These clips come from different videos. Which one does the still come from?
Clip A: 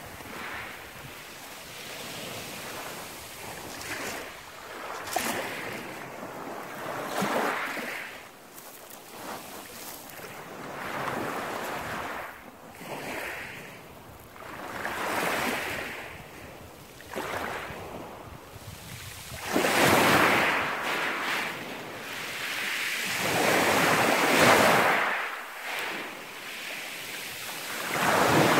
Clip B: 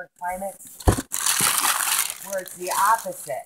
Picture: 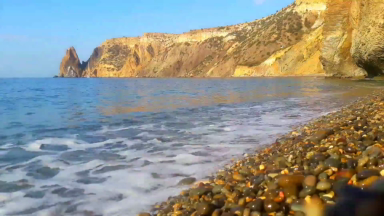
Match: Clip A